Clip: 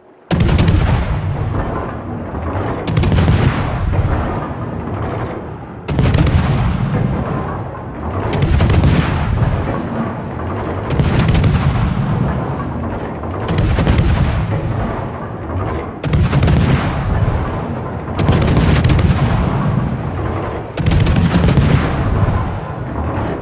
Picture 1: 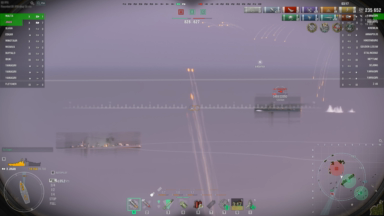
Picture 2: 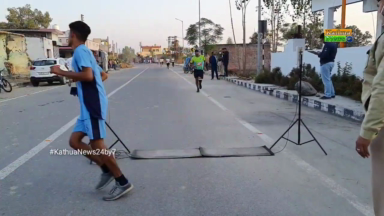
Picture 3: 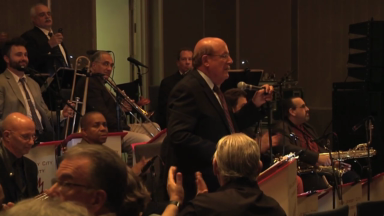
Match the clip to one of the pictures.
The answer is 1